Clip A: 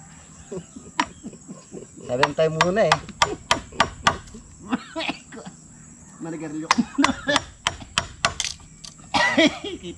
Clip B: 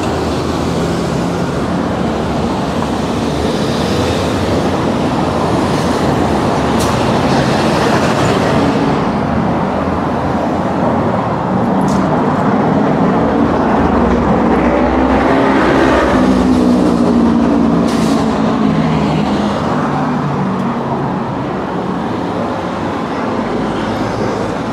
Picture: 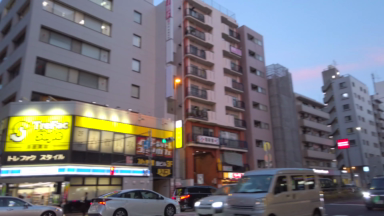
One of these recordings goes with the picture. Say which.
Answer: B